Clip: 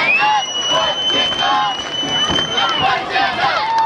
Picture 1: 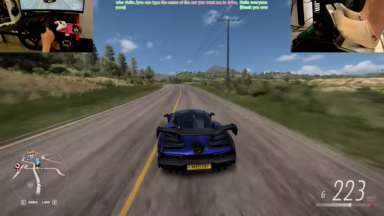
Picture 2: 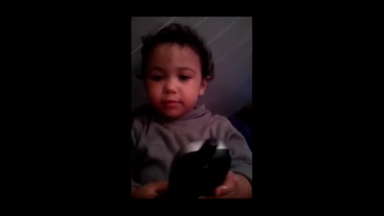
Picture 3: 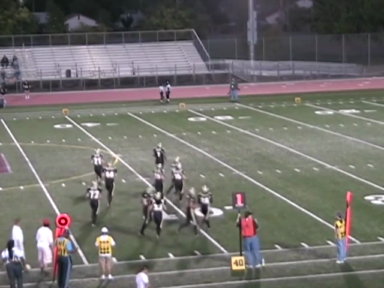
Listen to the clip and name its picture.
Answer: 3